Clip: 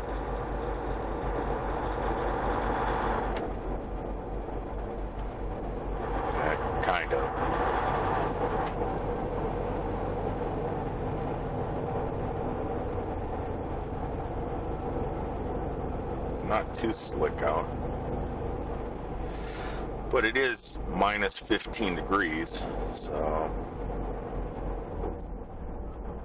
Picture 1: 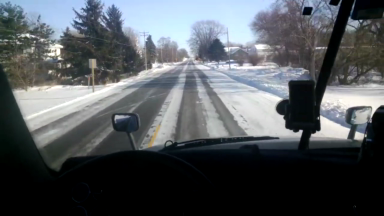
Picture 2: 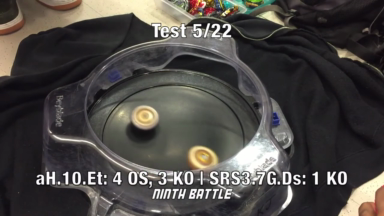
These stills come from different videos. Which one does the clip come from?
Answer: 1